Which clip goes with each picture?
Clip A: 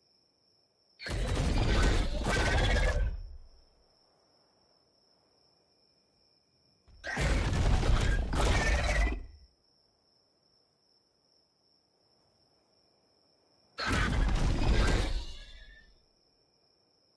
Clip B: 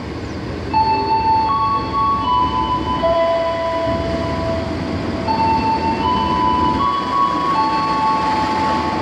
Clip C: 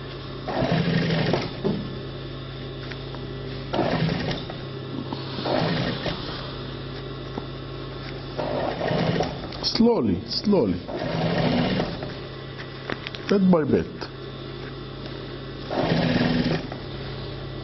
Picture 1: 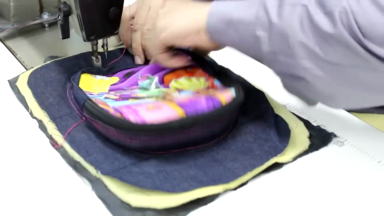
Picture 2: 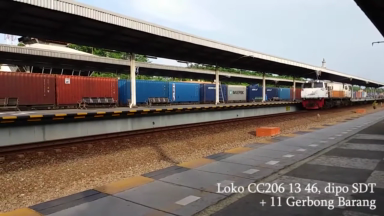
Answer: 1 C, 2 B